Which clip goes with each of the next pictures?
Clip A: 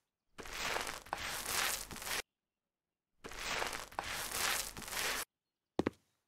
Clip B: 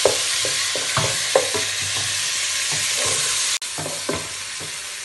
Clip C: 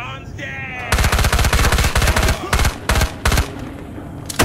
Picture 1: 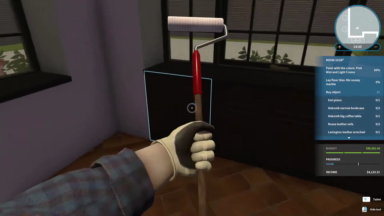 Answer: A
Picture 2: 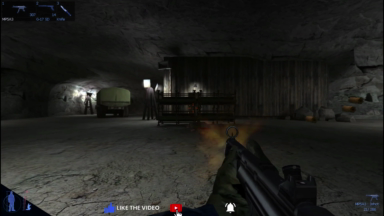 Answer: C